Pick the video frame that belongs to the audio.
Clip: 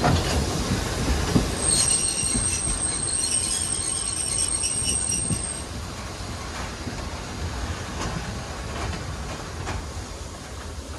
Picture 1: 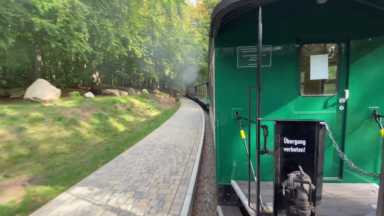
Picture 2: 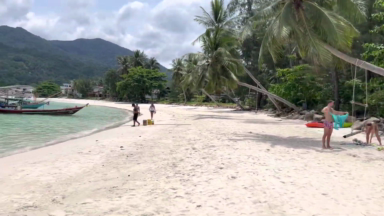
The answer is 1